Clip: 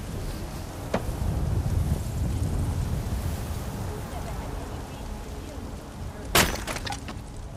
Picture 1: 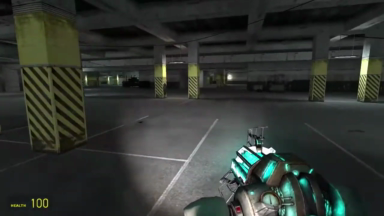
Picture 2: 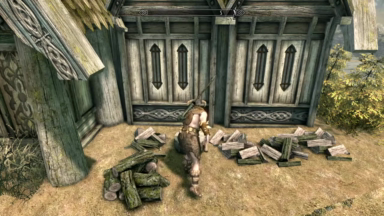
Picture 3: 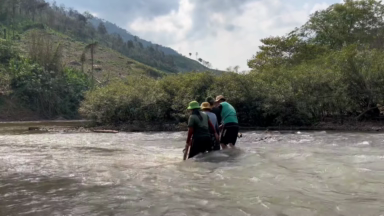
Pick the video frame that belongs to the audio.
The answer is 2